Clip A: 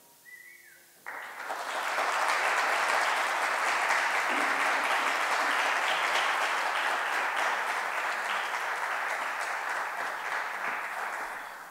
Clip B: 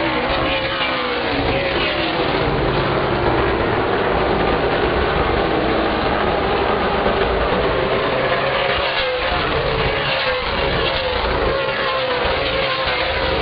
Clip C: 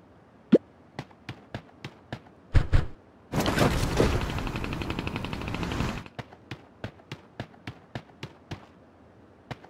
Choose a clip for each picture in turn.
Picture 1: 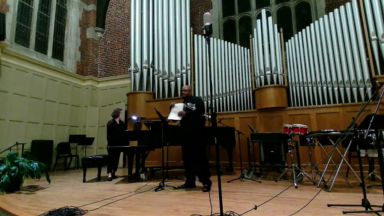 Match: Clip A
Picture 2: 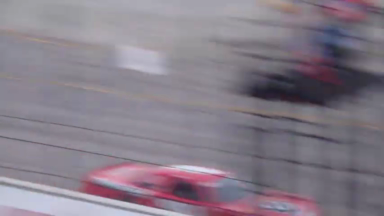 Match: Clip B